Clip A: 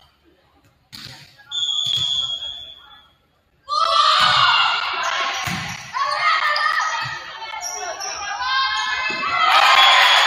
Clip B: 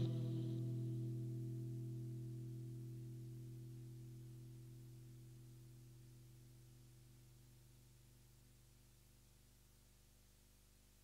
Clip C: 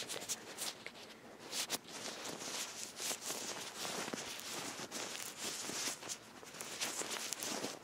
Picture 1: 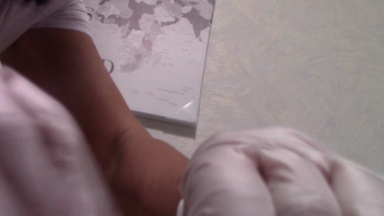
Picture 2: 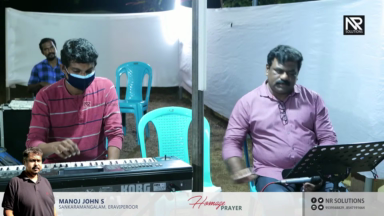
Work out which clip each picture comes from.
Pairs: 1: C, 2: B